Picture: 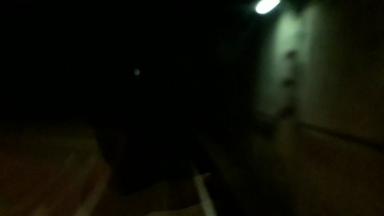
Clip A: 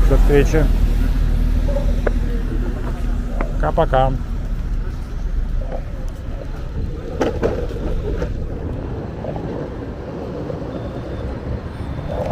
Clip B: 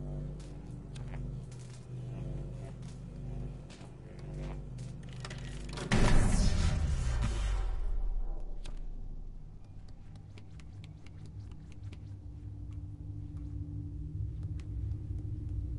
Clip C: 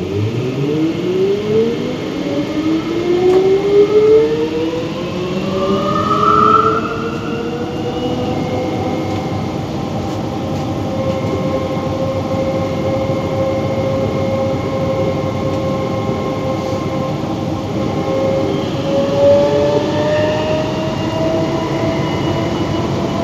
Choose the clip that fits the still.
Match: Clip C